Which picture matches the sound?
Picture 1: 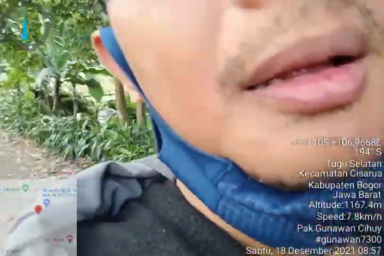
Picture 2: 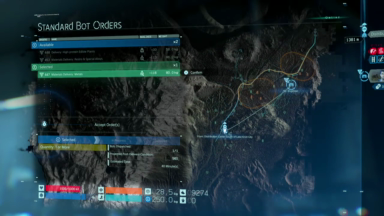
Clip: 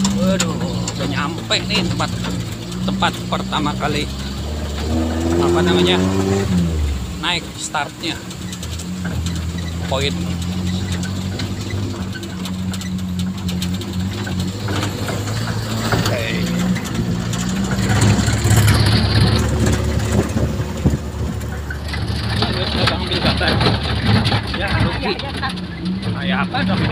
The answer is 1